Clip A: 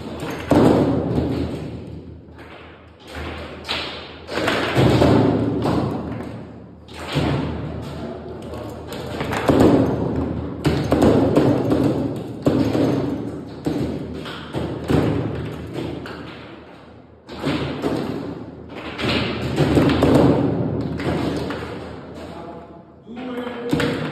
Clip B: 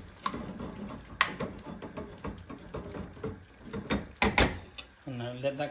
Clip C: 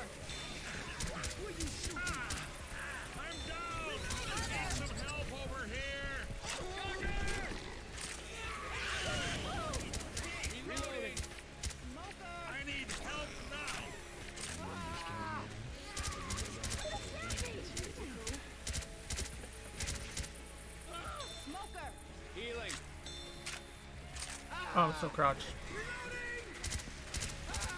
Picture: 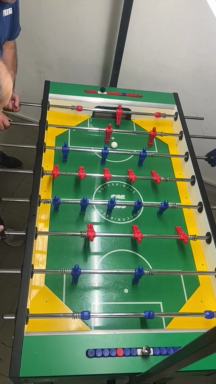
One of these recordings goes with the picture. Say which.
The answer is A